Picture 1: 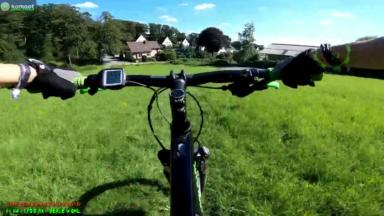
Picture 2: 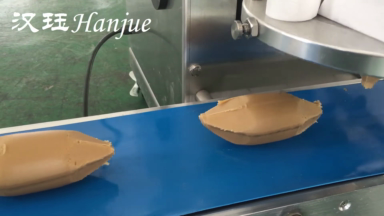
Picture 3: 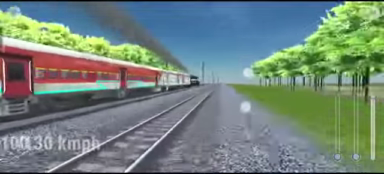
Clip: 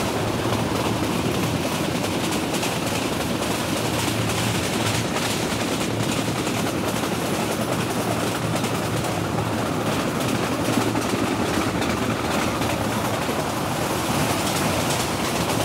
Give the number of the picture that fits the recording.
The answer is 3